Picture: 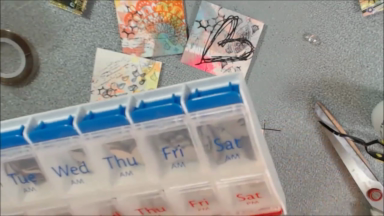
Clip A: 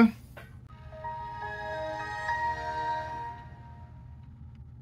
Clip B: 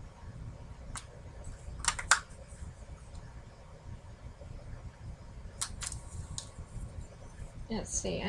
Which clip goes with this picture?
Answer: B